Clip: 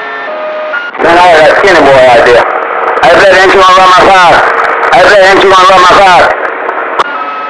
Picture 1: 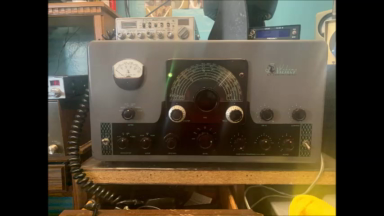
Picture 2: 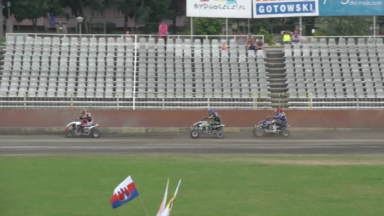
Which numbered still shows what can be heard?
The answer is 1